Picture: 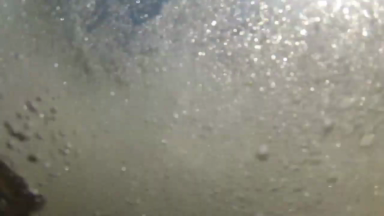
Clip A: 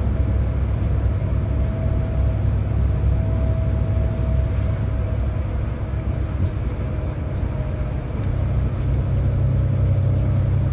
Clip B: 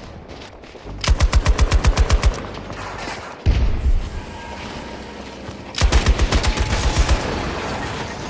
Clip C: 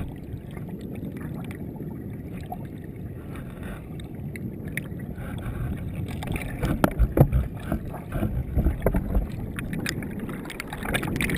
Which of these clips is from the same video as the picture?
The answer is C